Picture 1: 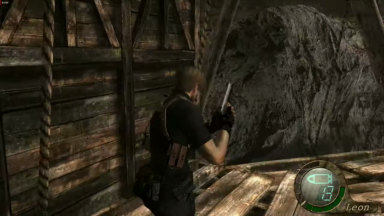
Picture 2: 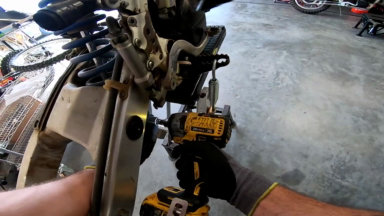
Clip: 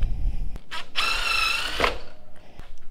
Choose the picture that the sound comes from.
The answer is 2